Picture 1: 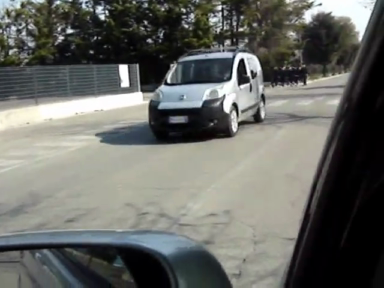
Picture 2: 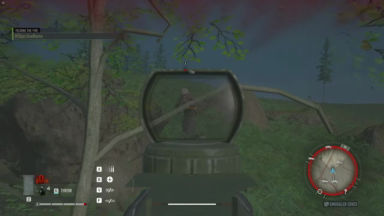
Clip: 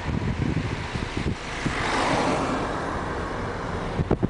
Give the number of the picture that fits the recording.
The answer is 1